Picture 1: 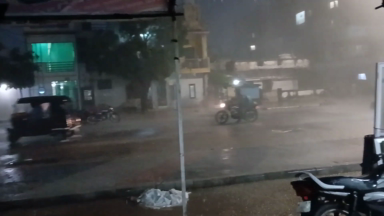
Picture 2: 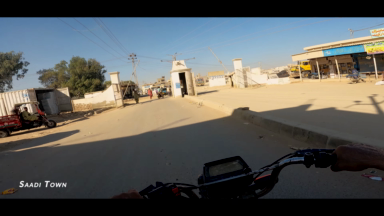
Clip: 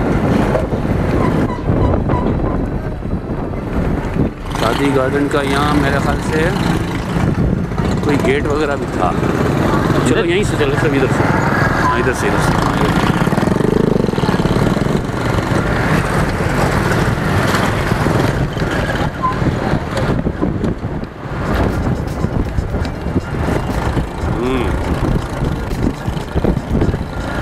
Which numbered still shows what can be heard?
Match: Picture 2